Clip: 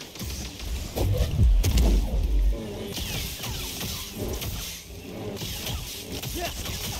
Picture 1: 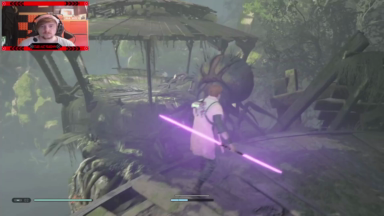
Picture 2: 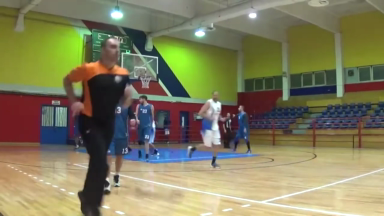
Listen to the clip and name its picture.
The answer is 1